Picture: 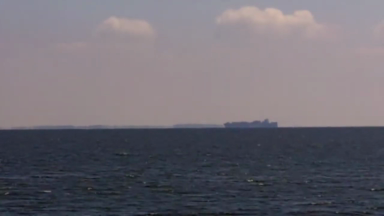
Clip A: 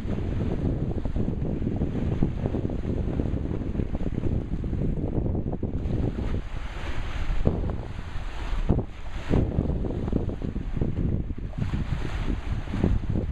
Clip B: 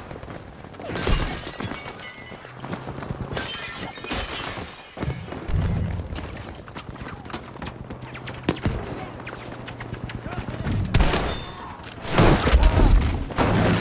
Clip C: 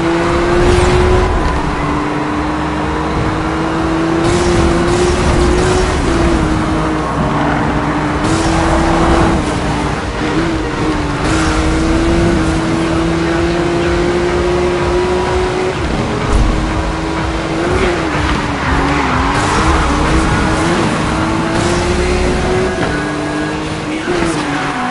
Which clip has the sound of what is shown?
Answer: A